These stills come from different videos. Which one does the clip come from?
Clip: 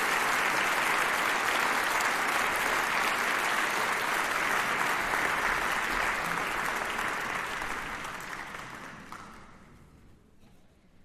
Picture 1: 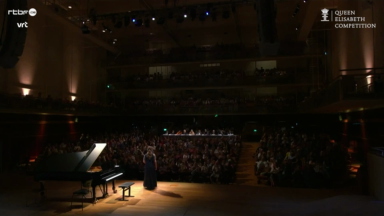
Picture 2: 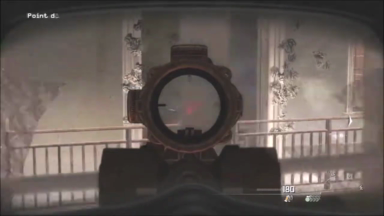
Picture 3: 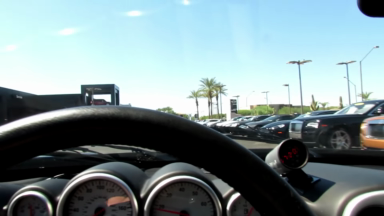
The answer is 1